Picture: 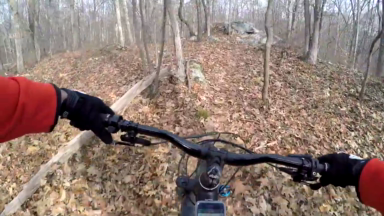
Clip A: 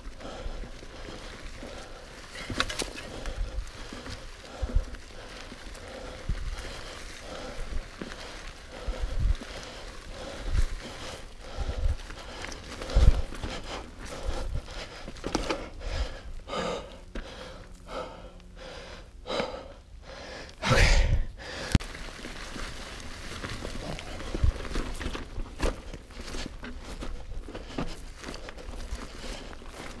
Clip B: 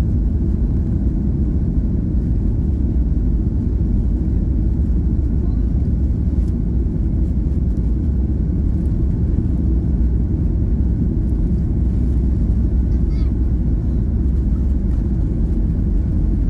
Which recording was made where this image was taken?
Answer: A